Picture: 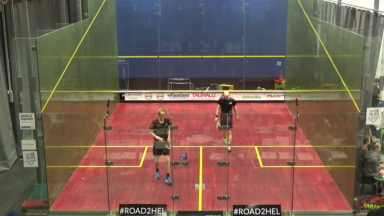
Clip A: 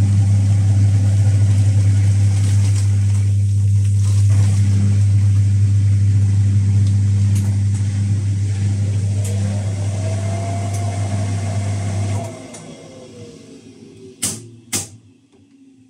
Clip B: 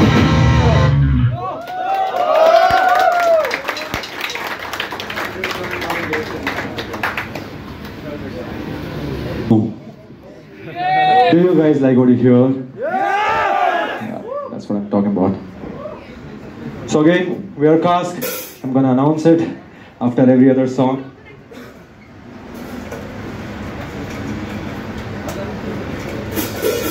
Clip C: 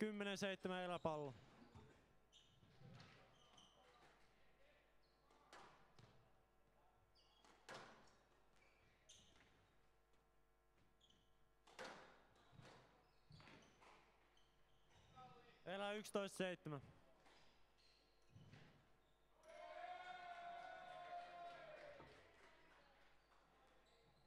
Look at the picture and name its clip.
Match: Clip C